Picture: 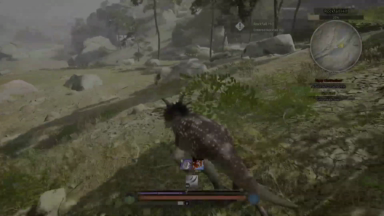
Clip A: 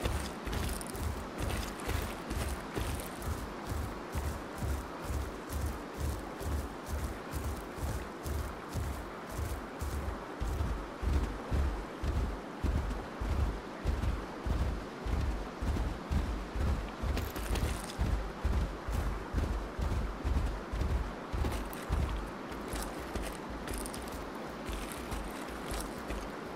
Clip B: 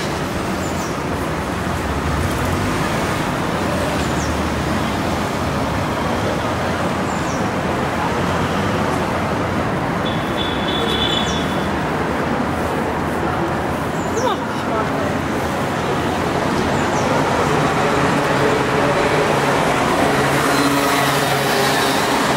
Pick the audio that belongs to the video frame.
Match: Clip A